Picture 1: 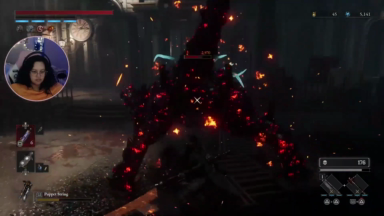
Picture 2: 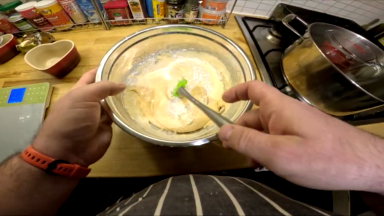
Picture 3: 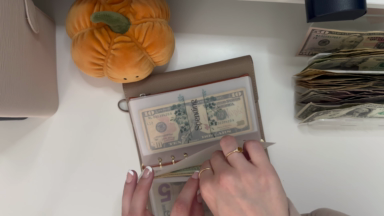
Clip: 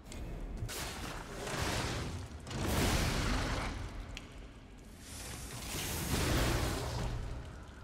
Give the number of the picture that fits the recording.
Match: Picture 1